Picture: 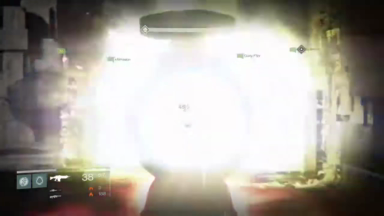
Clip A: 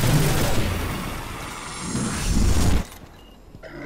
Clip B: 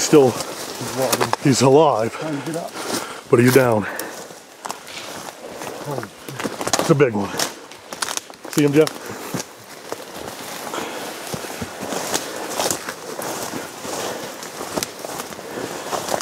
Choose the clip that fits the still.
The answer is A